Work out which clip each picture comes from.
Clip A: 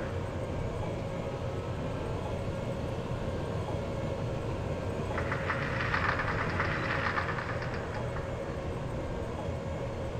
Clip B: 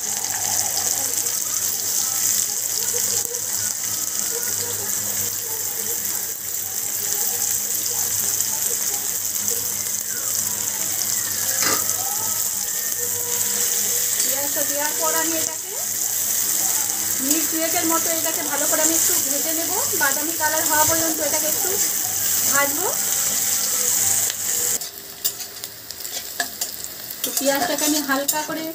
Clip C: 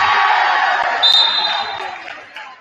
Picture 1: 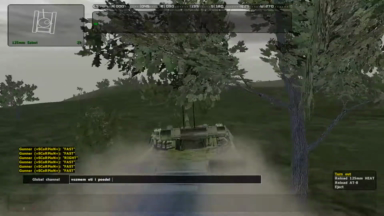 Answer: A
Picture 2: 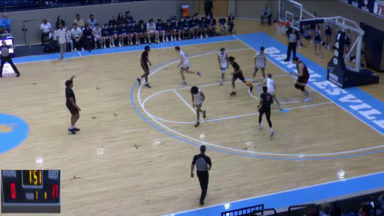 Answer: C